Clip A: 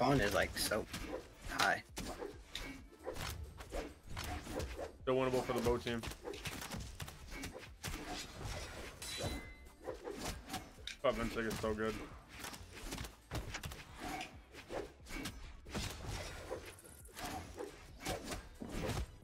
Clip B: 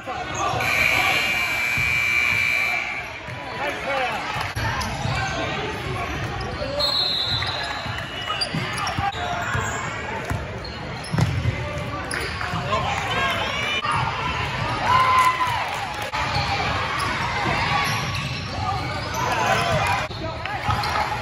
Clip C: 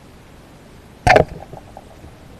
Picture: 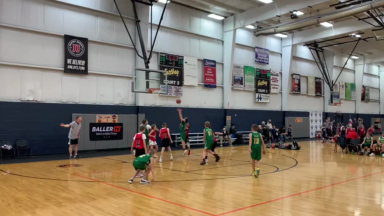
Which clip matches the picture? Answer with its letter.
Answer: B